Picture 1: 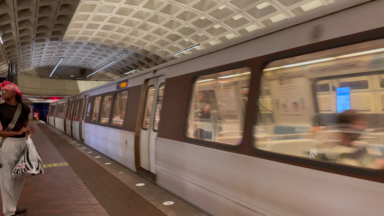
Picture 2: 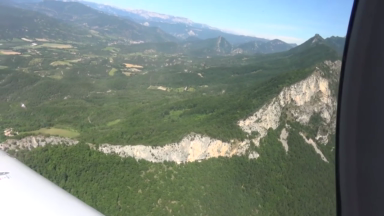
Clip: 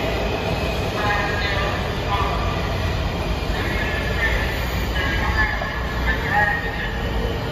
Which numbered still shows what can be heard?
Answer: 1